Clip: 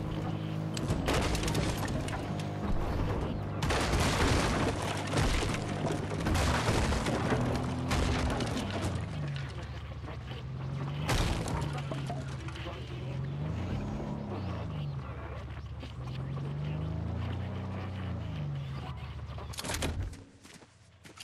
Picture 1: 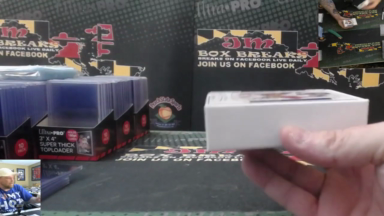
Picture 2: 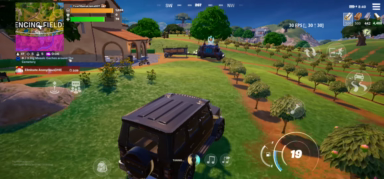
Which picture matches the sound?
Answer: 2